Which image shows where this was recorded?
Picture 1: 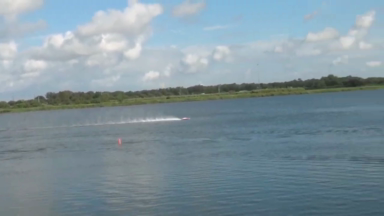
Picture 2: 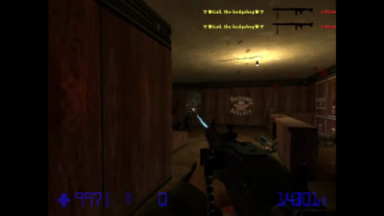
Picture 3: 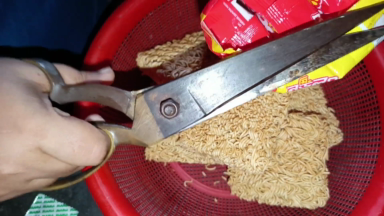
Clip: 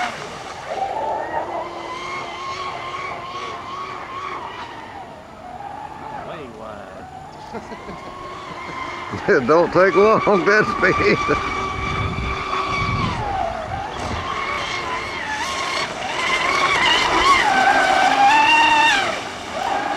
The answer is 1